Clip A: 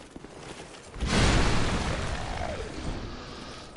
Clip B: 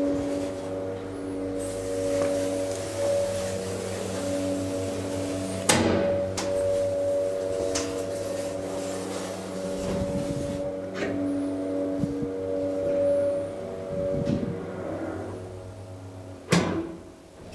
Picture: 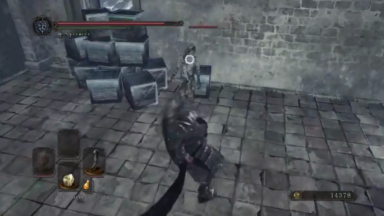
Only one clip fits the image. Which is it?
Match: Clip A